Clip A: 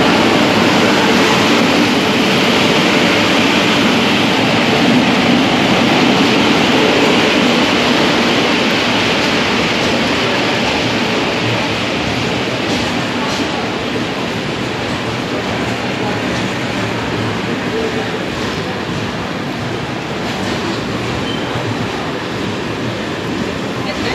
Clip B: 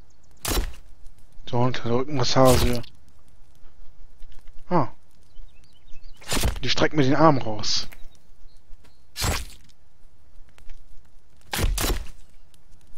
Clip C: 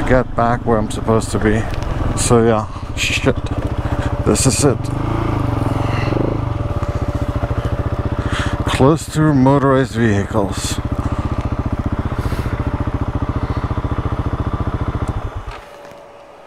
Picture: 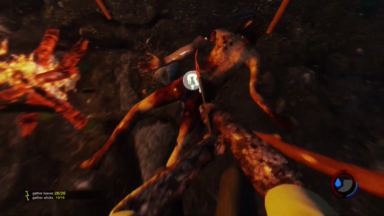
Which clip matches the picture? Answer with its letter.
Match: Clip B